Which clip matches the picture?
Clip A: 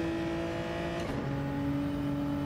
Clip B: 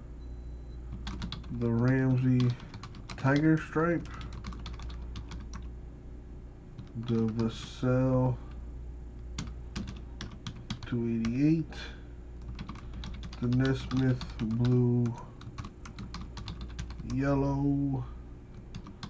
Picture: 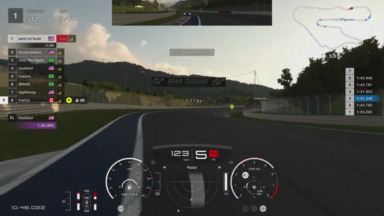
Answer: A